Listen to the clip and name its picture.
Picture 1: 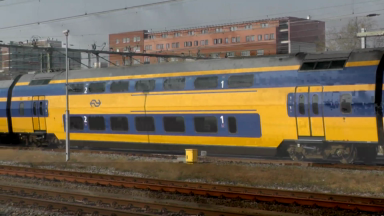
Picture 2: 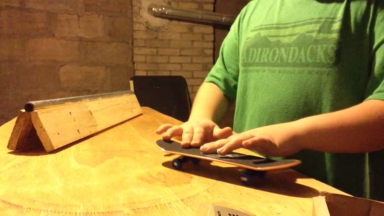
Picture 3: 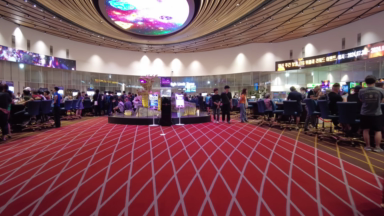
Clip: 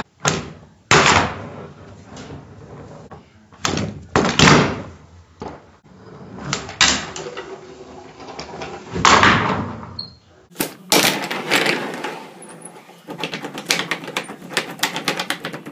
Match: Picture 2